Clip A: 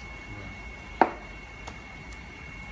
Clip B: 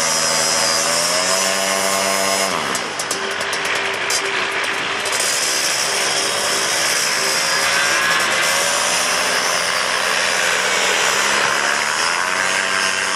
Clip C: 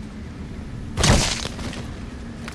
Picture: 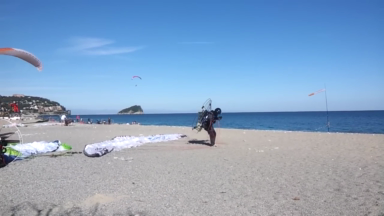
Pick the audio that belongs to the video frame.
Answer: B